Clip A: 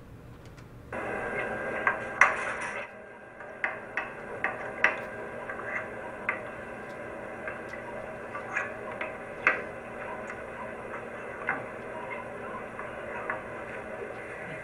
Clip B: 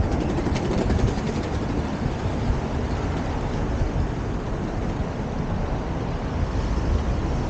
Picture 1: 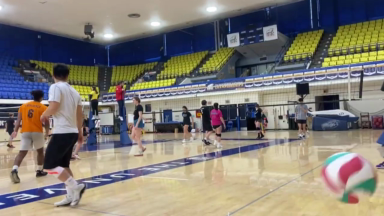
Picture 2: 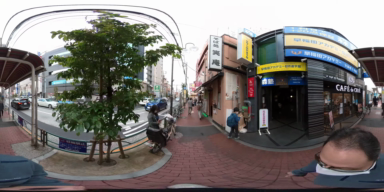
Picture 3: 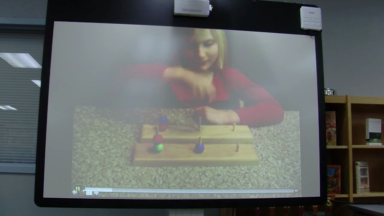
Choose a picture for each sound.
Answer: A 3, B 2